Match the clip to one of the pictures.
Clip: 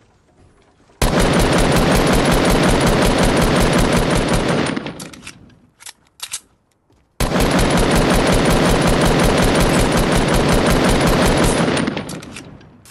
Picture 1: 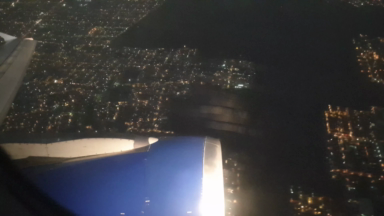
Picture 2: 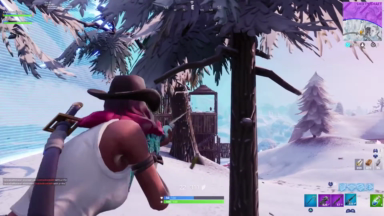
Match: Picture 2